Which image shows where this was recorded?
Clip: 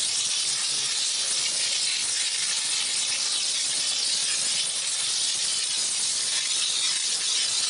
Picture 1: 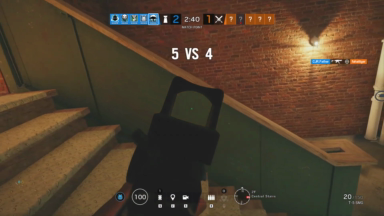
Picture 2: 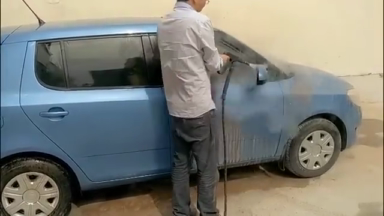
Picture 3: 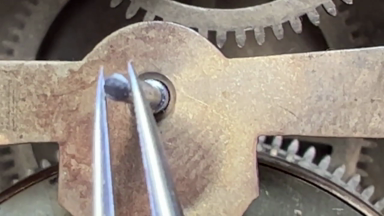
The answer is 2